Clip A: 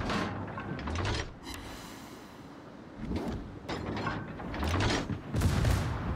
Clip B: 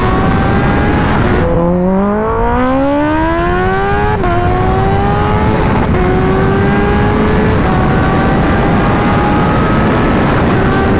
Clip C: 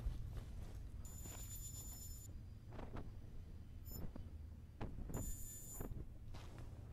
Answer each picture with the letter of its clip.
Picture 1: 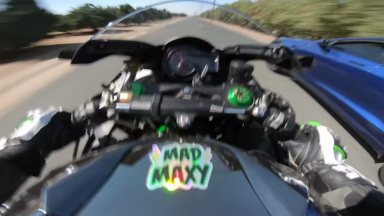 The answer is B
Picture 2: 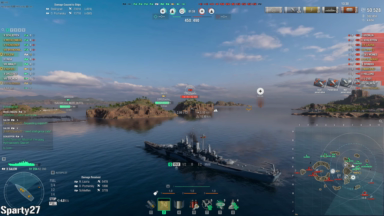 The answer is A